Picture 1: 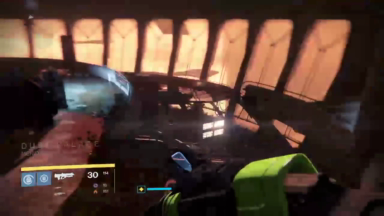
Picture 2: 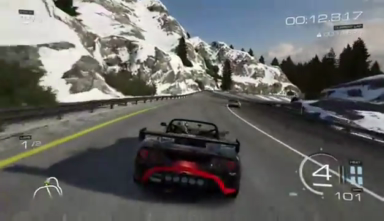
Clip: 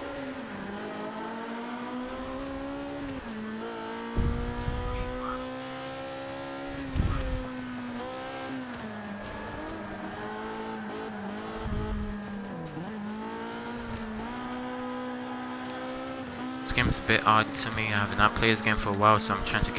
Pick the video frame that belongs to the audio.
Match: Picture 2